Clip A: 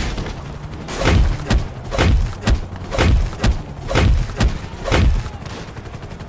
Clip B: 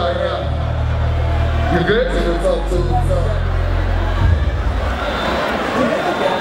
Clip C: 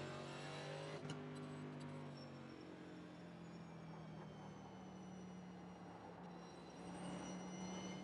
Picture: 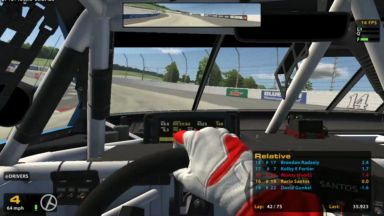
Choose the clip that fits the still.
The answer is C